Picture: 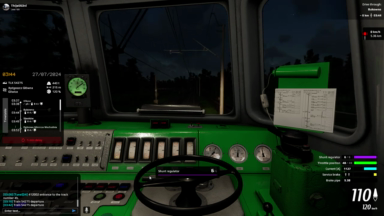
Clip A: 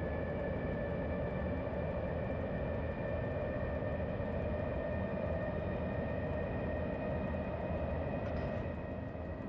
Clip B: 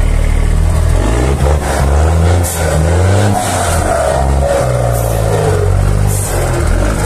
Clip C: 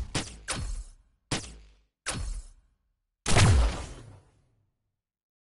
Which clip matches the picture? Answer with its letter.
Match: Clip A